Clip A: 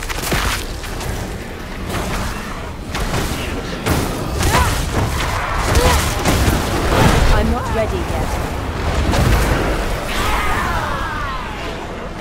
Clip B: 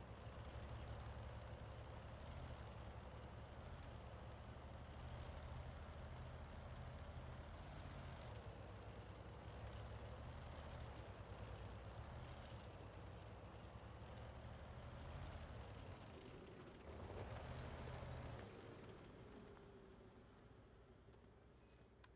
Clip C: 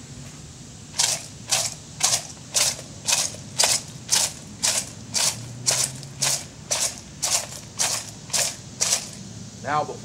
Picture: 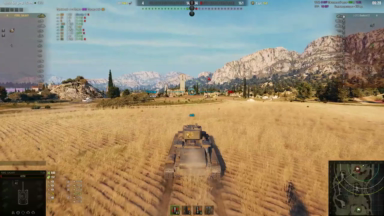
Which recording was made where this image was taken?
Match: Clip B